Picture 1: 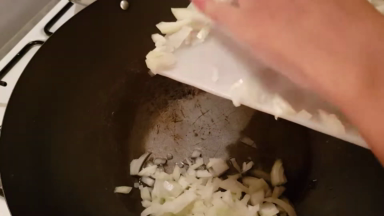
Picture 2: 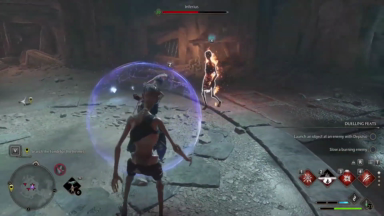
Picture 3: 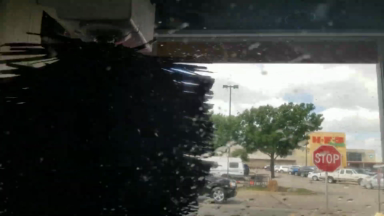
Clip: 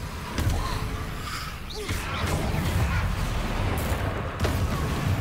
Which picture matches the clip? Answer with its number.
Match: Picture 2